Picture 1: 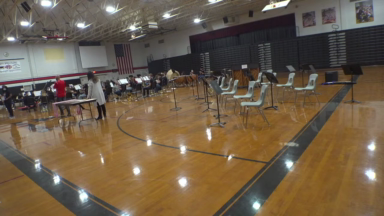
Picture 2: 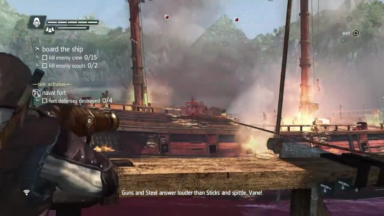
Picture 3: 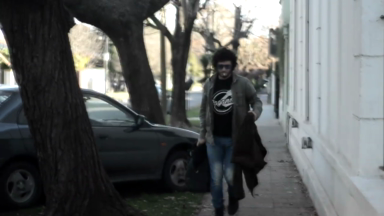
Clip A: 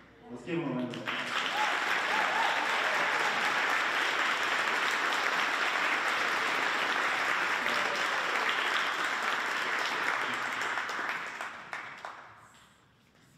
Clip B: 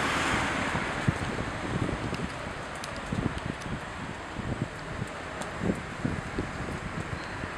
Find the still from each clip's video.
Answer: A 1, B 3